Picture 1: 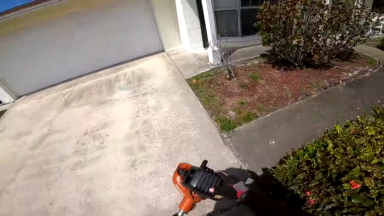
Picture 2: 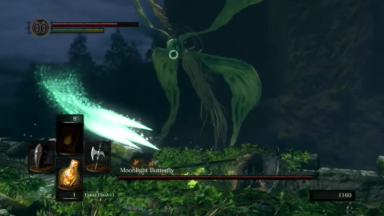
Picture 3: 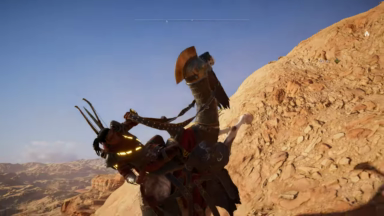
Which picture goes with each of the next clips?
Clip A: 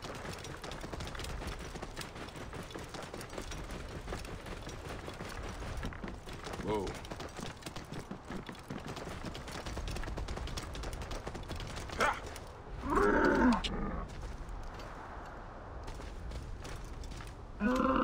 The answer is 3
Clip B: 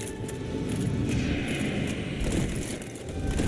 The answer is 2